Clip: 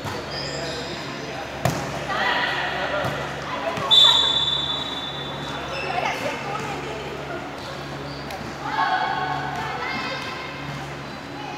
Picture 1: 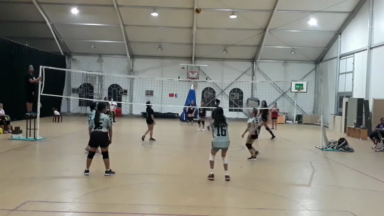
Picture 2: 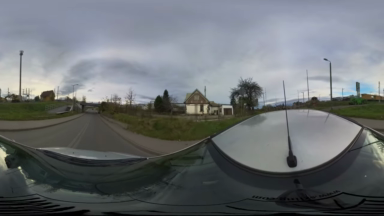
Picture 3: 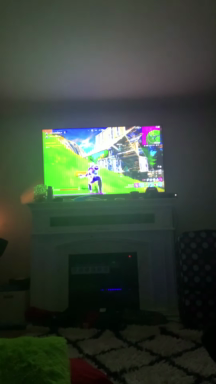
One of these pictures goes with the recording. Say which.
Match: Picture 1